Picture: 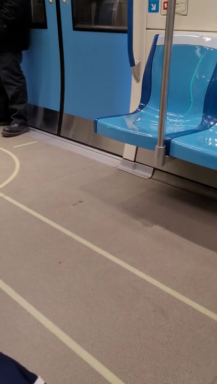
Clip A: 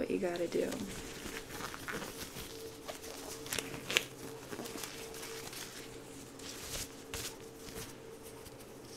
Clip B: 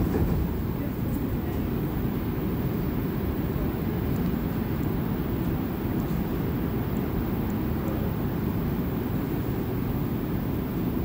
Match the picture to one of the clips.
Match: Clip B